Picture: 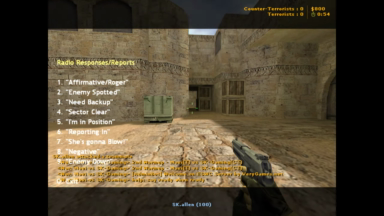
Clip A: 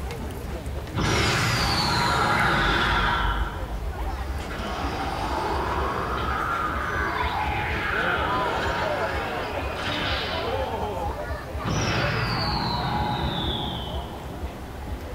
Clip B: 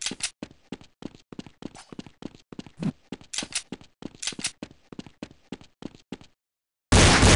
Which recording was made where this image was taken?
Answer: B